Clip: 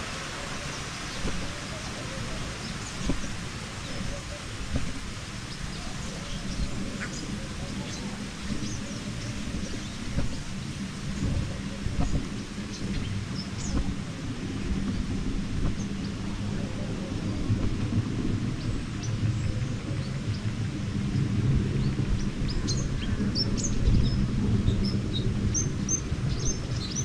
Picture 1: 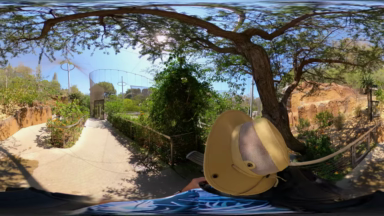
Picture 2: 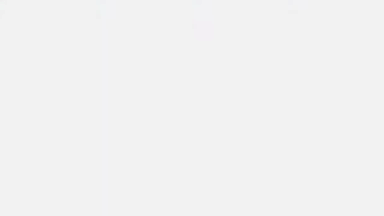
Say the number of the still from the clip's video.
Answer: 1